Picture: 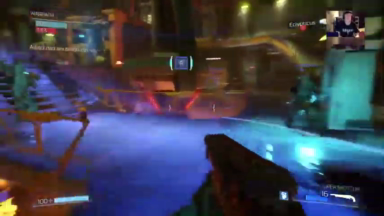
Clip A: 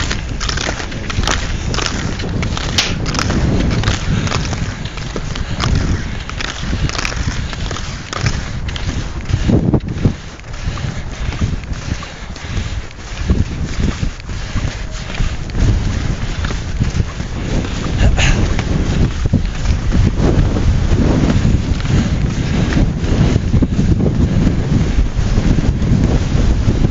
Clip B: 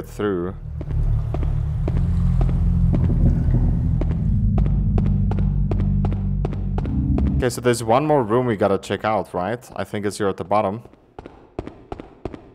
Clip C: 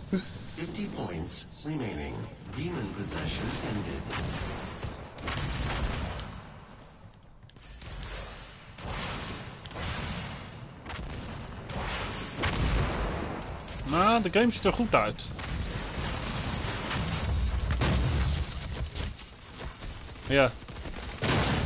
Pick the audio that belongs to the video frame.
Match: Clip C